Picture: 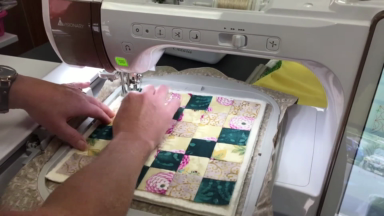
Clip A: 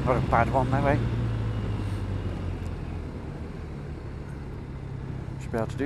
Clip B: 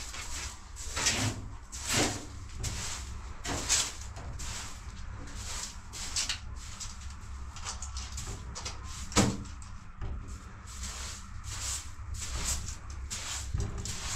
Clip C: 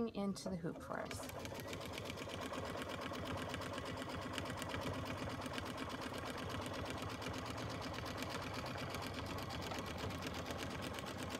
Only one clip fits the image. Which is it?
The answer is C